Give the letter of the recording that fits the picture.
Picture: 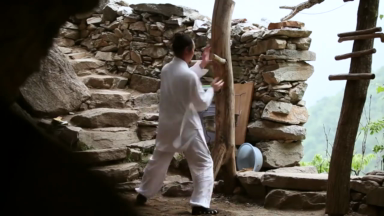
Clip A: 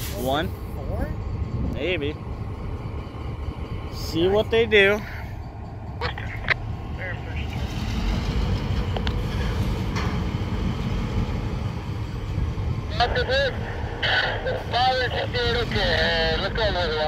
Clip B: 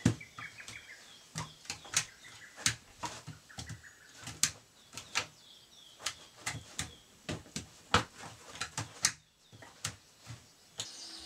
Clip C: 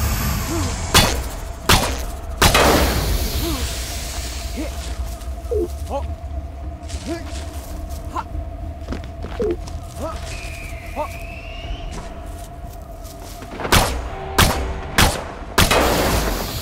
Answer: B